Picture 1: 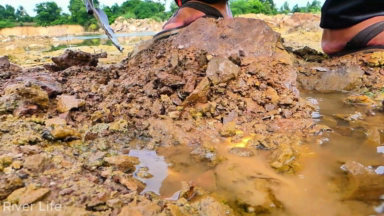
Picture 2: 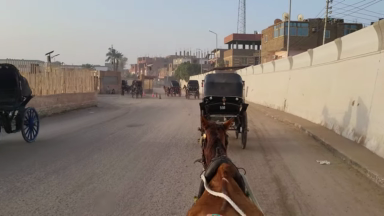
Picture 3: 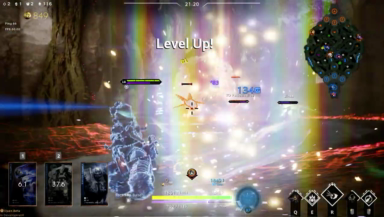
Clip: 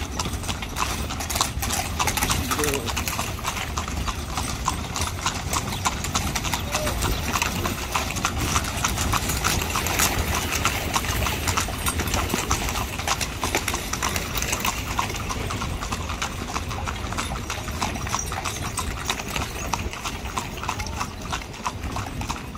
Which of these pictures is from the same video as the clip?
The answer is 2